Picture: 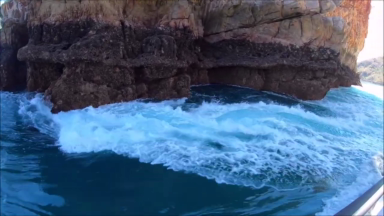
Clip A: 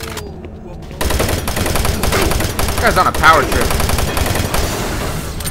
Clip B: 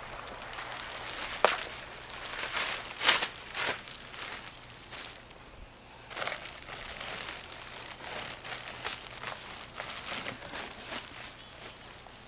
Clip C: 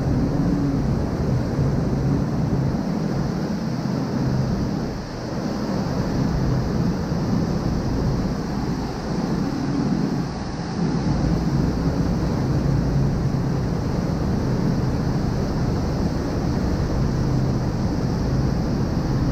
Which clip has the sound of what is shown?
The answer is C